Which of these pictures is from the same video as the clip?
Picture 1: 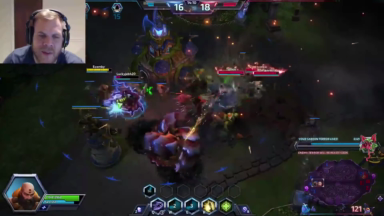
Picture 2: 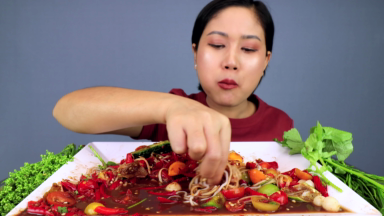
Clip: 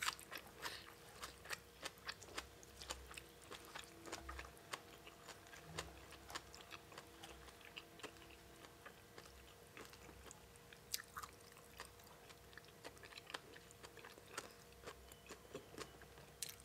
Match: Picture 2